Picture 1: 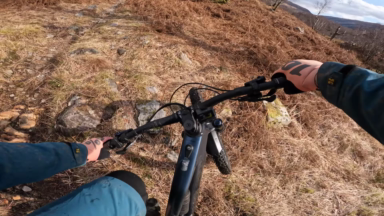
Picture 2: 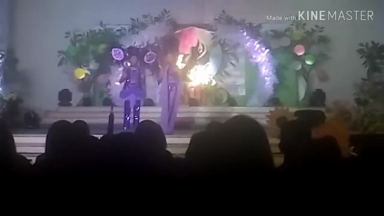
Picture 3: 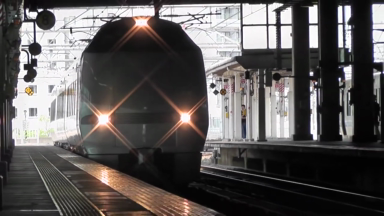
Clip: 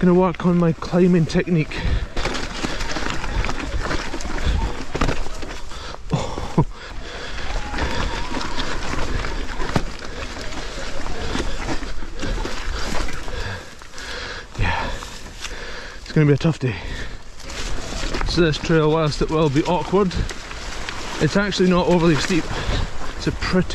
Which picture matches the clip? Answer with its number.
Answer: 1